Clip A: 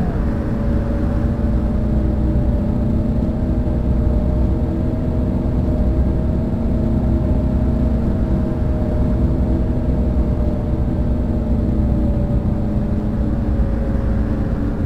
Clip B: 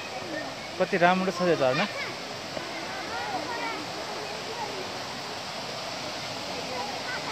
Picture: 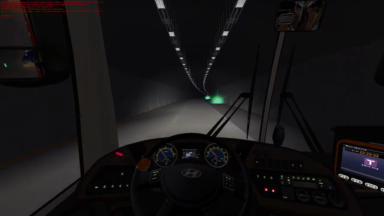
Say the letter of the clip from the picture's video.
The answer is A